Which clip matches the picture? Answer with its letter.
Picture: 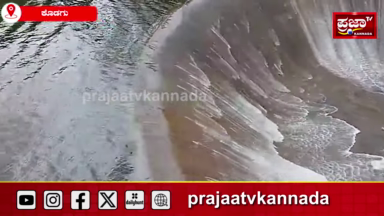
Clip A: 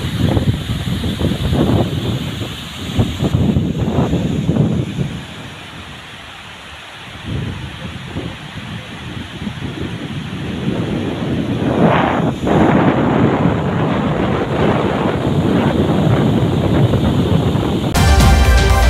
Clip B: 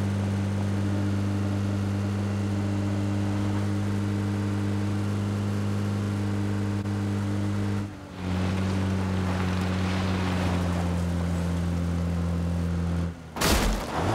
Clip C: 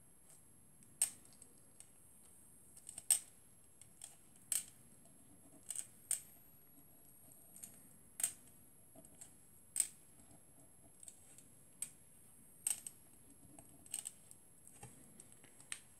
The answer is A